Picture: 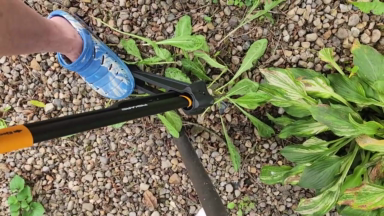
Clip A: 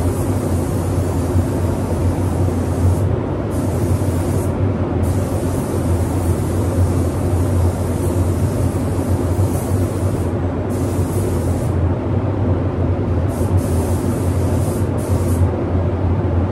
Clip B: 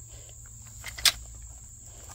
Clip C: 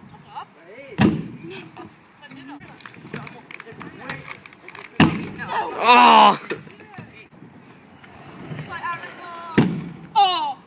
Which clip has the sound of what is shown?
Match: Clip B